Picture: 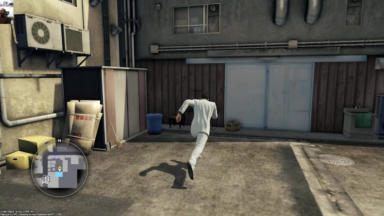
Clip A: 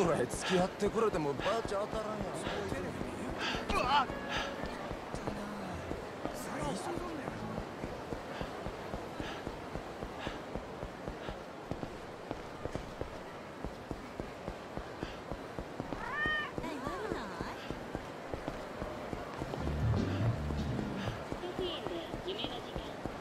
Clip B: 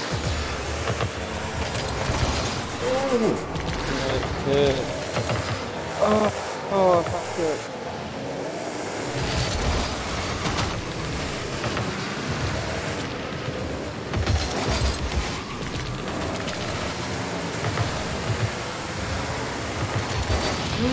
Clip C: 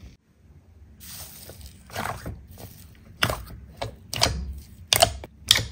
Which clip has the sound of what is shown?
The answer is A